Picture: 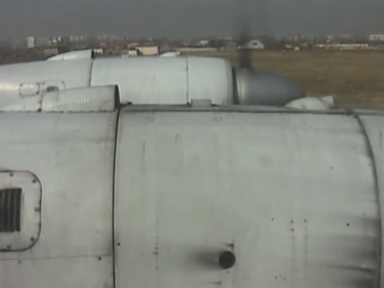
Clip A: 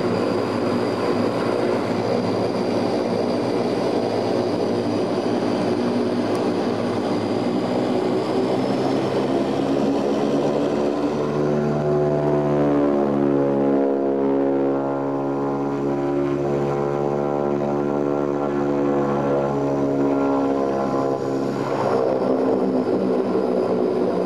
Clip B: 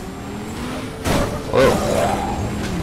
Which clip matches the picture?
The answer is A